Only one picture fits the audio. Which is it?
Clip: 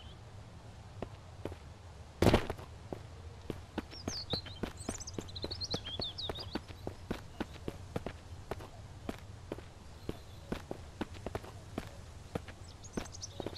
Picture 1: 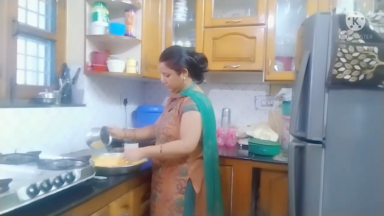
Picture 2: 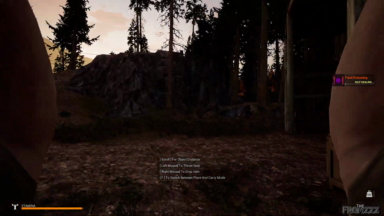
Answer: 2